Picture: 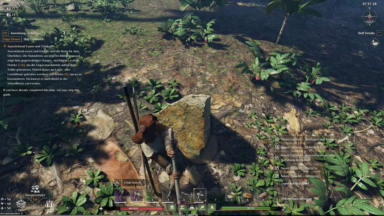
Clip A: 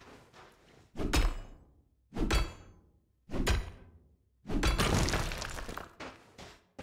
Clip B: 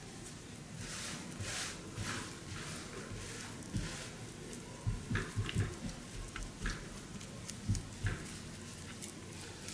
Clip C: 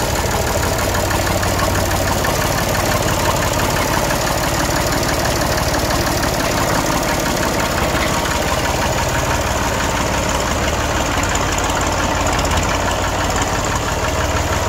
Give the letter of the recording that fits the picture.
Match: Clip A